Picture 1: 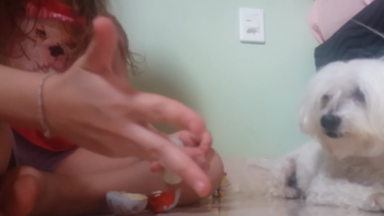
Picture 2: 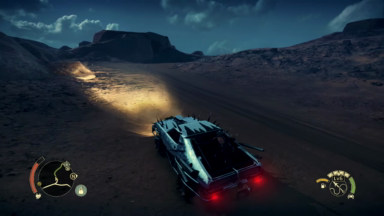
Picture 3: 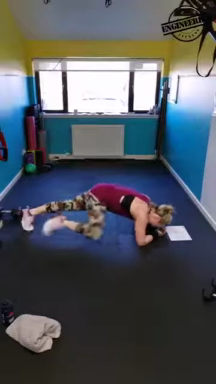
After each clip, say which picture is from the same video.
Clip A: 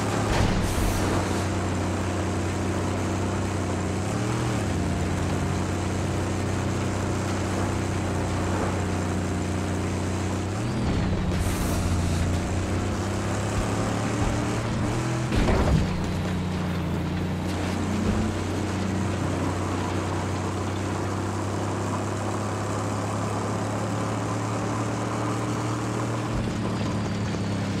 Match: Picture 2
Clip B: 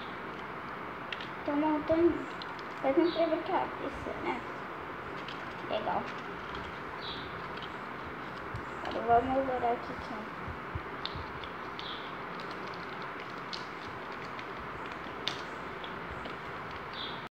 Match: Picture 1